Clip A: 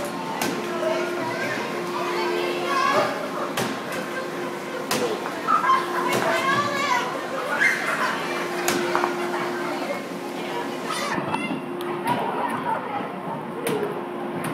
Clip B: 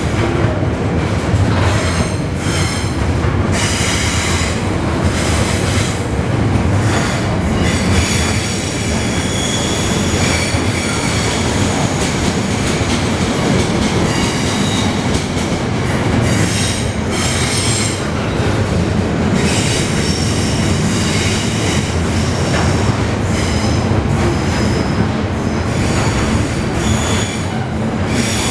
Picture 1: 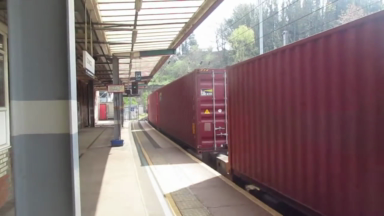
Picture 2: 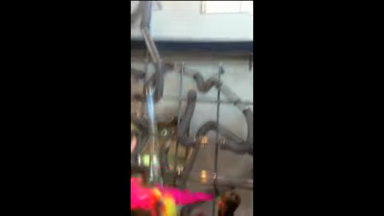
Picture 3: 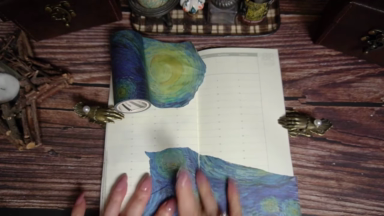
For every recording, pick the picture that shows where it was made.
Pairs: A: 2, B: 1